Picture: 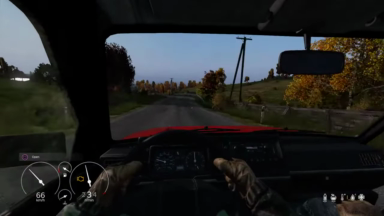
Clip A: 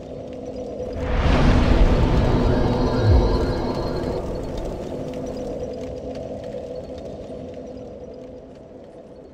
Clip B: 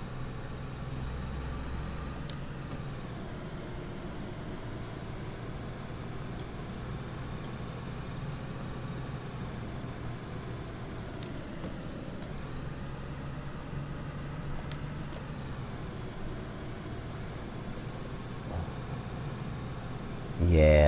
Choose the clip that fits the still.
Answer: B